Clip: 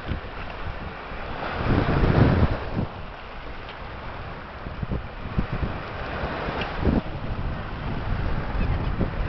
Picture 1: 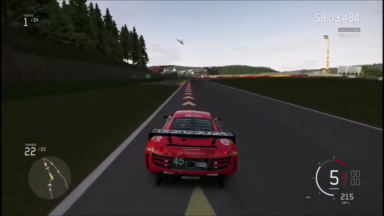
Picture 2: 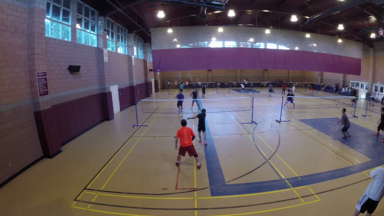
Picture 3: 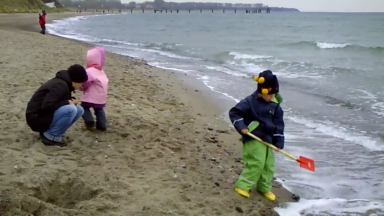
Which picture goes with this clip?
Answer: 3